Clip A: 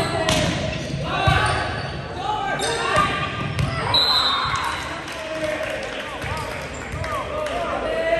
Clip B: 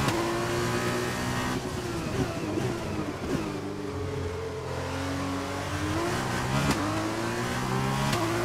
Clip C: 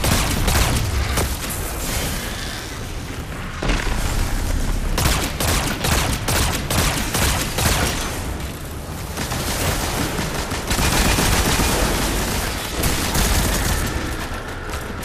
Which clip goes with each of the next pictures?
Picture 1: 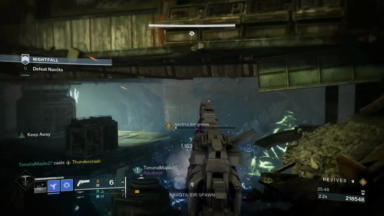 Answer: C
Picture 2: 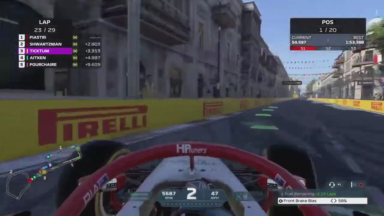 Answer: B